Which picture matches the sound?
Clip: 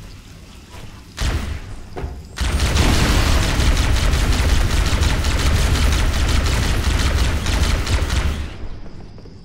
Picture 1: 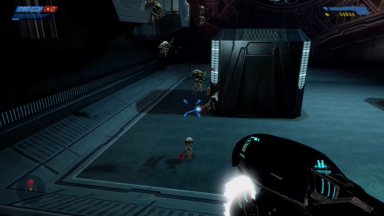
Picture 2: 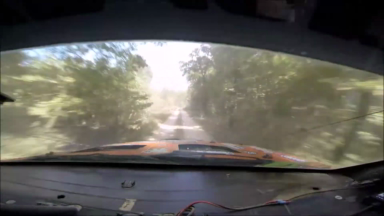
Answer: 1